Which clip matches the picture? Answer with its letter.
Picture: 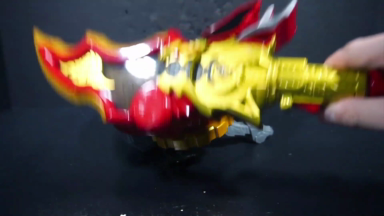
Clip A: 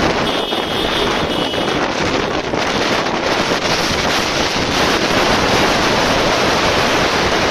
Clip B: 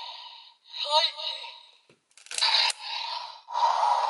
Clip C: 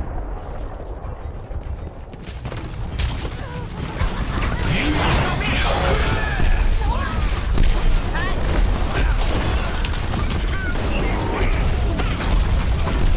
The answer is B